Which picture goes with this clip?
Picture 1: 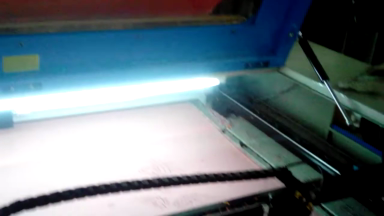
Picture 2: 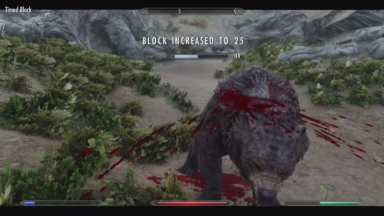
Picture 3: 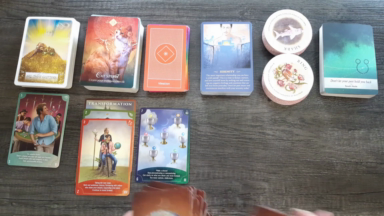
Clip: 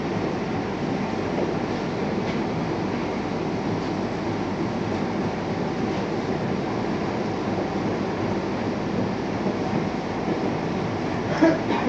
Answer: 1